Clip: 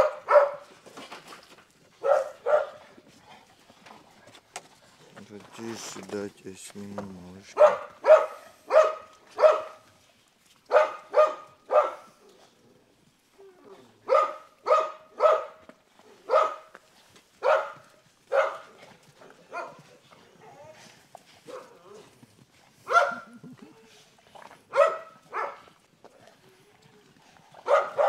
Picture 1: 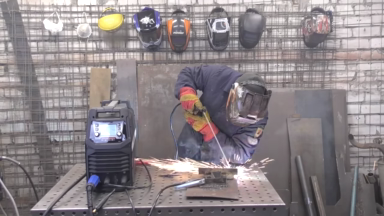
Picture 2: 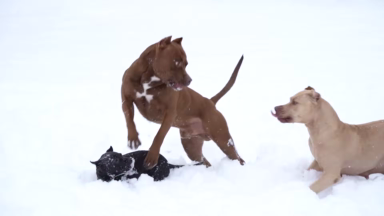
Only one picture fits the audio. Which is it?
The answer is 2